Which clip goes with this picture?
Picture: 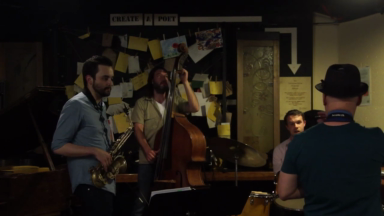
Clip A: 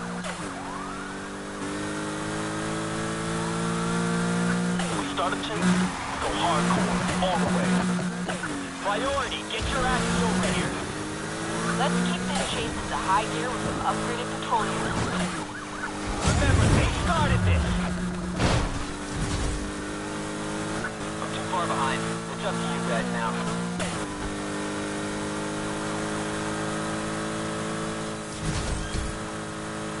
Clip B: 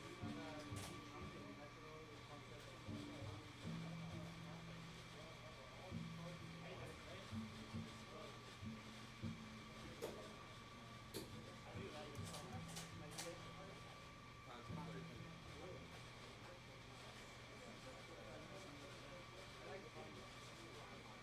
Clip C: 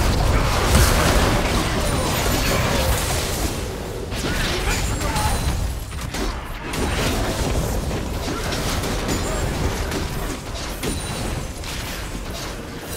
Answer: B